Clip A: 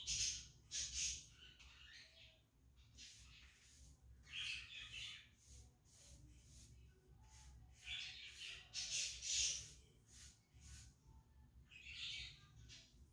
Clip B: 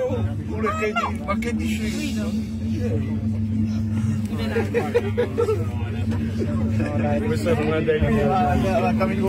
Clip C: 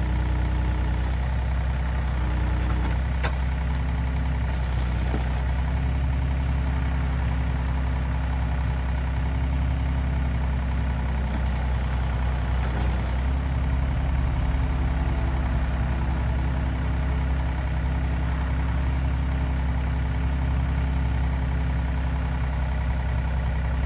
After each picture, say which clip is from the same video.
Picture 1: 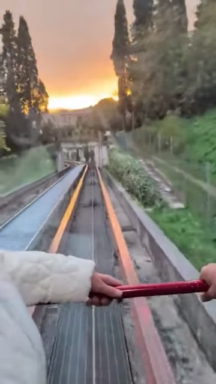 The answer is B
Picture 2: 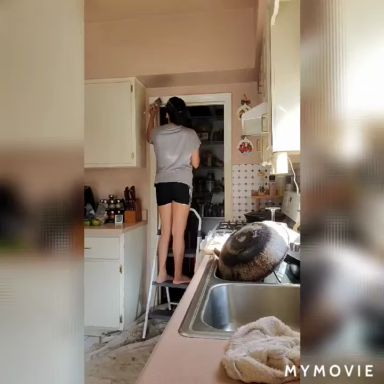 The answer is A